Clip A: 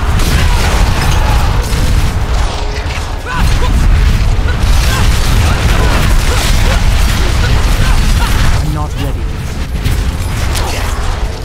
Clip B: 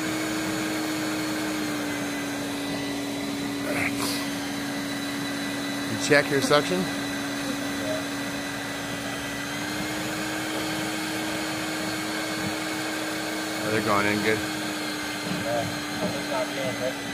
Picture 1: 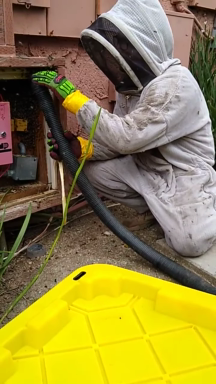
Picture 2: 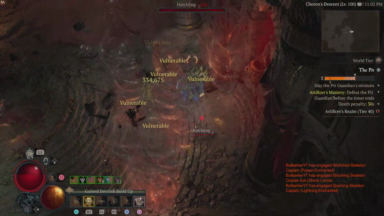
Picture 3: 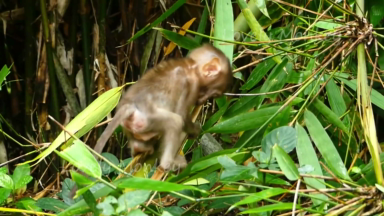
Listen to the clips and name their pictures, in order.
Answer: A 2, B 1